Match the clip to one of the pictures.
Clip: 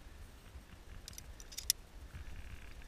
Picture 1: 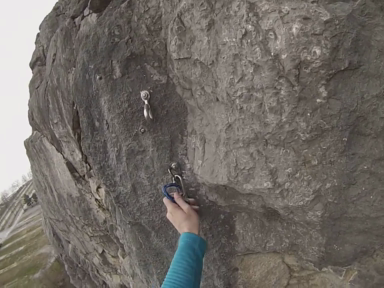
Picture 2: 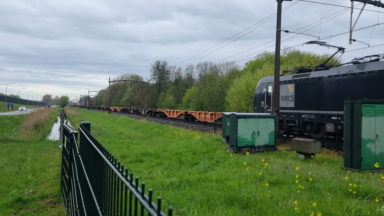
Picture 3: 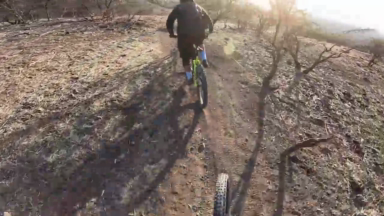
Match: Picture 1